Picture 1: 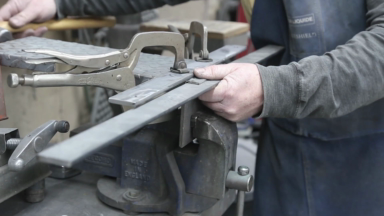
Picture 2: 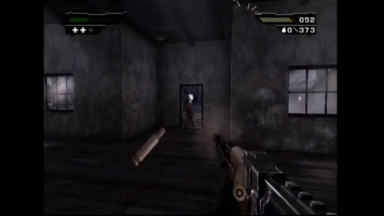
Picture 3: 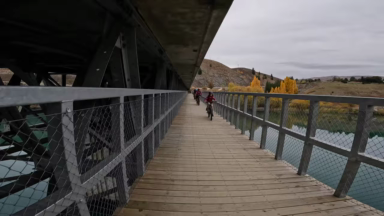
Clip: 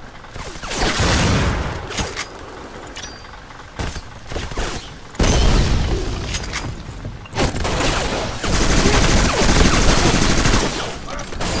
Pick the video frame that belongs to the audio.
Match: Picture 2